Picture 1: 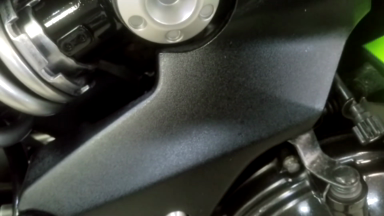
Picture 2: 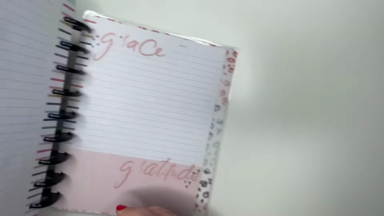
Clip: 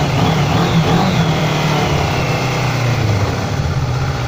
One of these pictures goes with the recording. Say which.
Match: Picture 1